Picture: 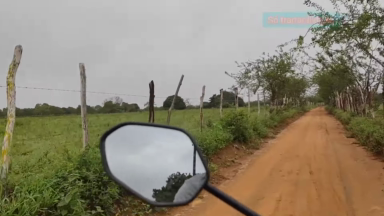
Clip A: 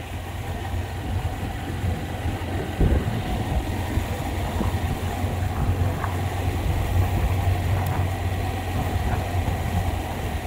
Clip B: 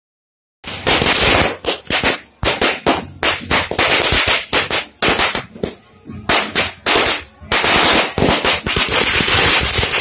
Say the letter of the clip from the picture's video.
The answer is A